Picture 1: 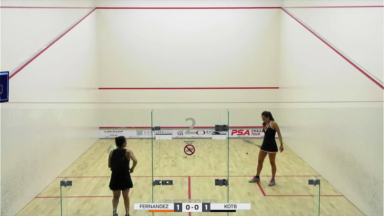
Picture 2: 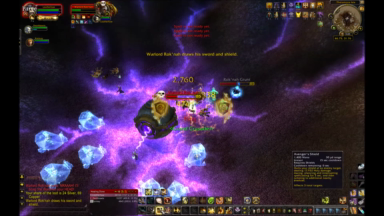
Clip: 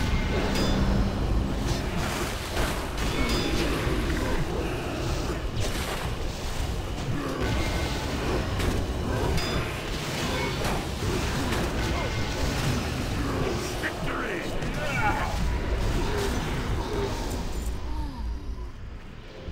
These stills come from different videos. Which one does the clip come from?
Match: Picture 2